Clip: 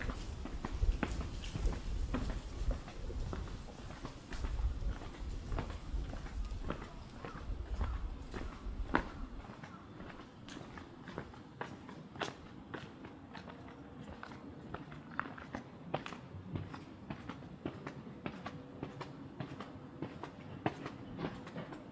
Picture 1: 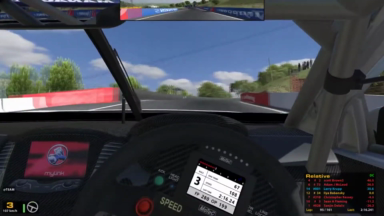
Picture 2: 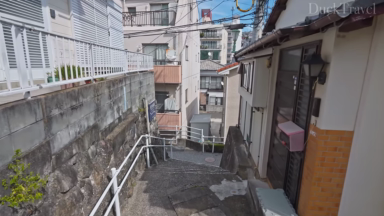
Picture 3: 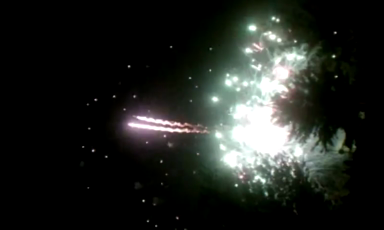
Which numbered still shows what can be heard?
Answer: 2